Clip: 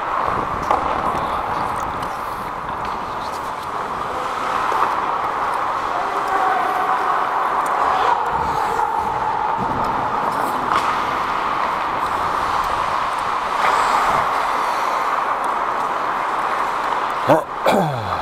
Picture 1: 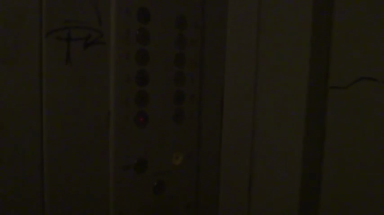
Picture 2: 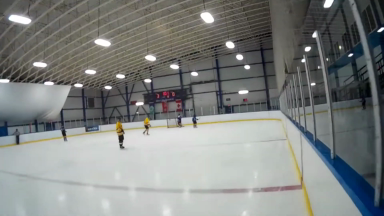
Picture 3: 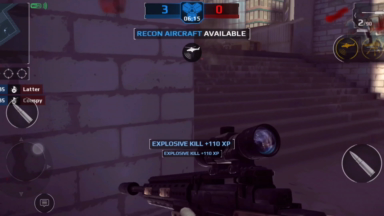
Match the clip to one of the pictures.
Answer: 2